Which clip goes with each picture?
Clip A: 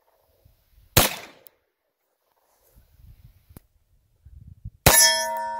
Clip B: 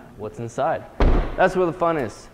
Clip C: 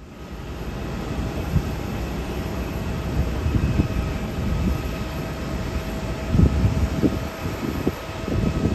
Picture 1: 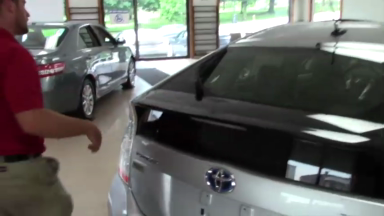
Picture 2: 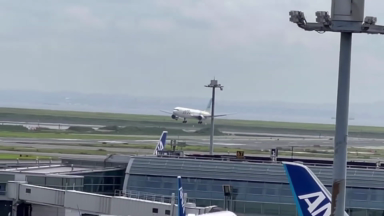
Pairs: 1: B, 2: C